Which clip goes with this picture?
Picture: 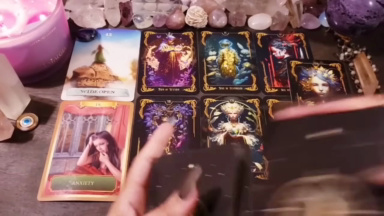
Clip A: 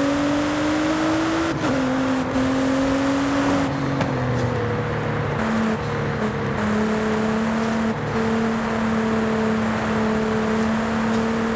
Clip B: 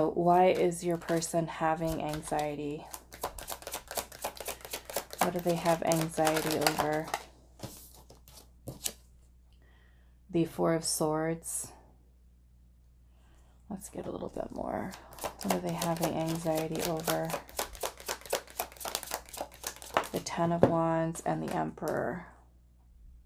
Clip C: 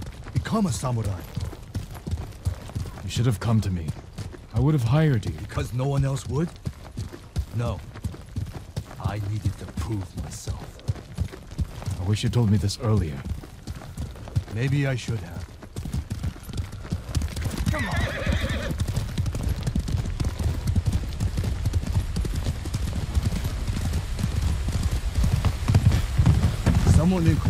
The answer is B